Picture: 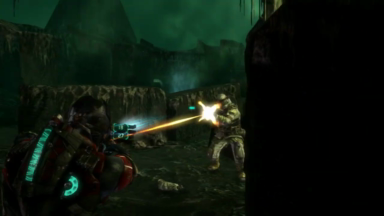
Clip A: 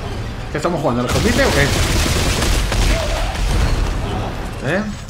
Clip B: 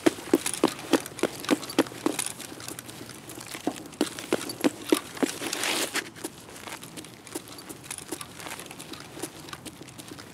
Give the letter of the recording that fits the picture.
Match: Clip A